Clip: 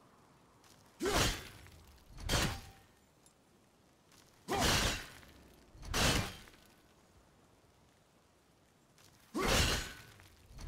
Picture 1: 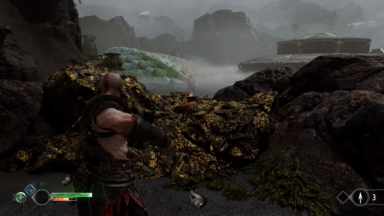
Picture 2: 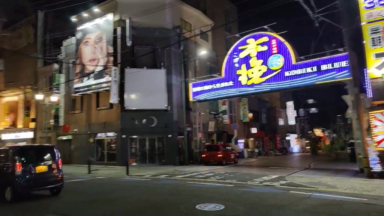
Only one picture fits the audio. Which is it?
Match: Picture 1